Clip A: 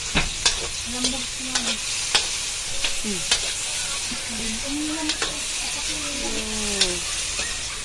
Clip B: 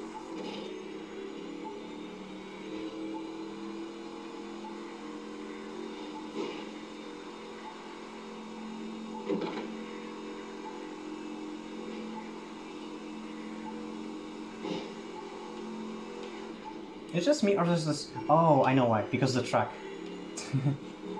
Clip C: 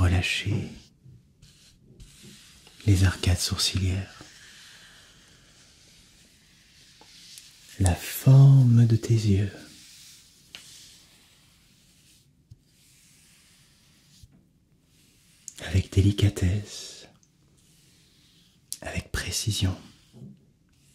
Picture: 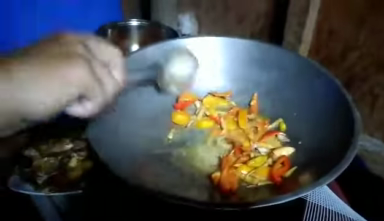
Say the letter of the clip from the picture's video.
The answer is A